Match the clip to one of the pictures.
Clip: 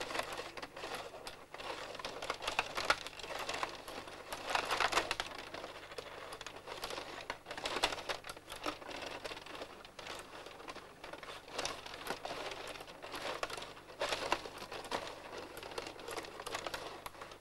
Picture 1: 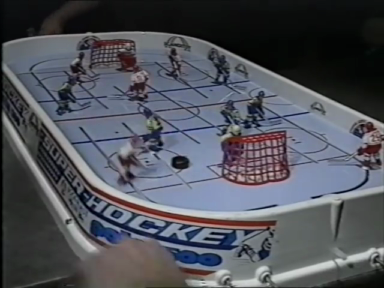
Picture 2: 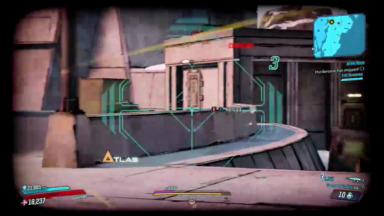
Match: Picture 1